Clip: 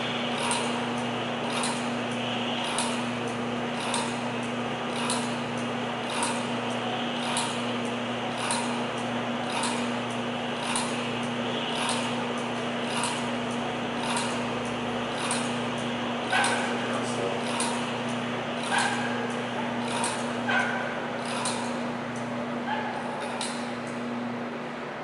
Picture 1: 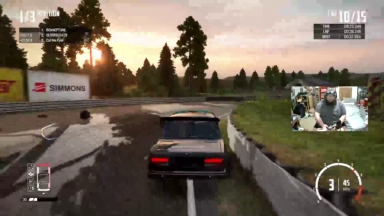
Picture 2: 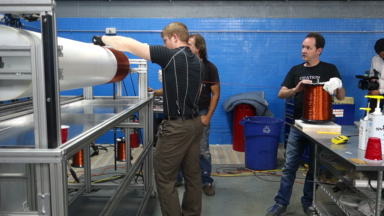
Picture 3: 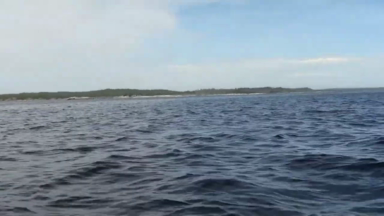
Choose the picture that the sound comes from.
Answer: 2